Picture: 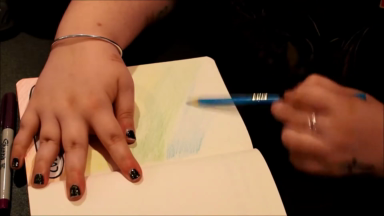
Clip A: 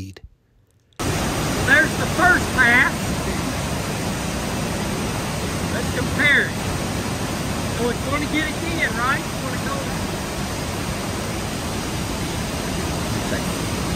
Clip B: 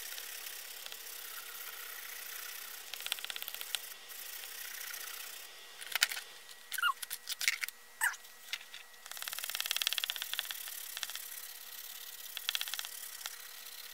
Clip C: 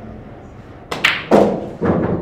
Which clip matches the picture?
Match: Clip B